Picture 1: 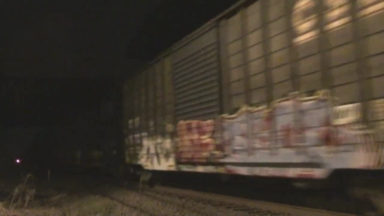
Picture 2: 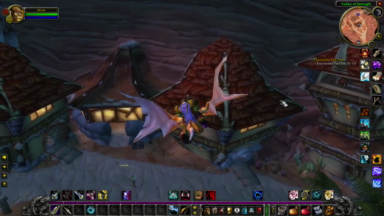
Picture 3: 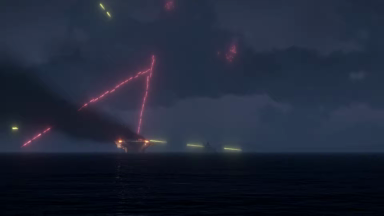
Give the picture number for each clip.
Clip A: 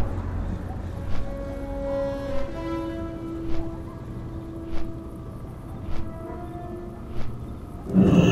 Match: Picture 2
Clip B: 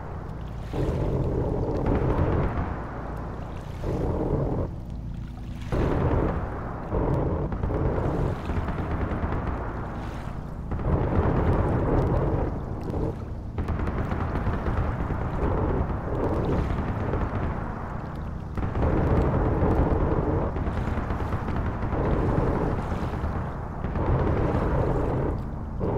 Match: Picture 3